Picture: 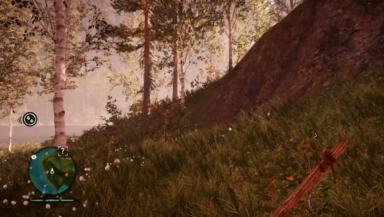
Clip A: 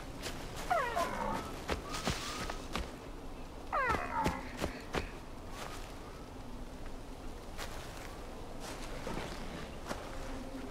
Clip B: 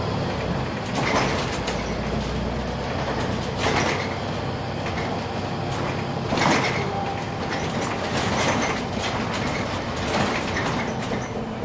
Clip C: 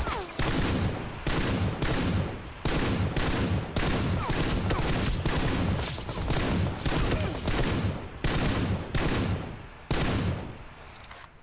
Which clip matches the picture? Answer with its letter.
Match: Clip A